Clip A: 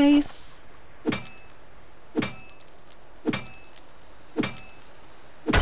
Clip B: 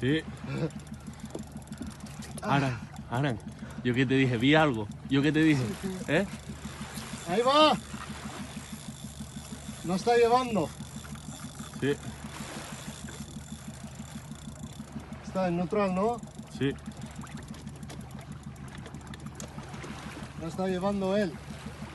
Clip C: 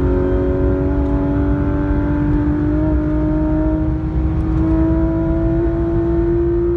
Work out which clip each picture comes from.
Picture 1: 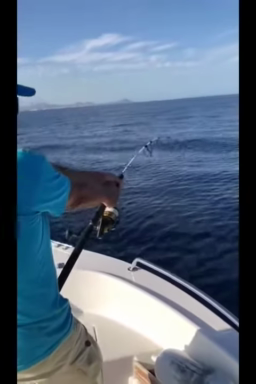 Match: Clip B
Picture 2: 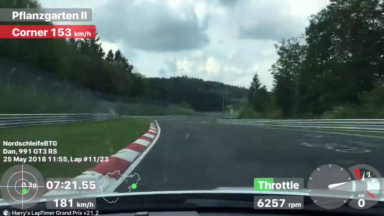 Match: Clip C